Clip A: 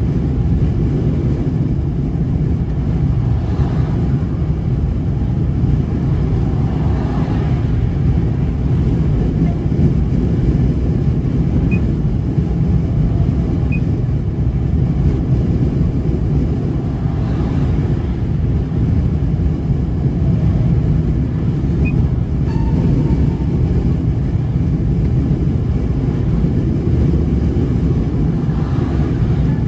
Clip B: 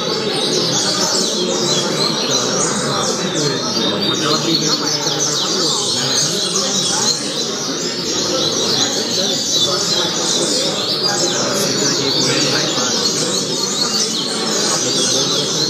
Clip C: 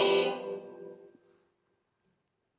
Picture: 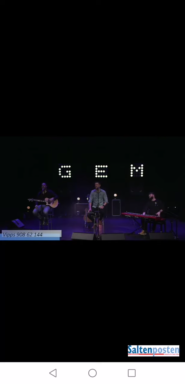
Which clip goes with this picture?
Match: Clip C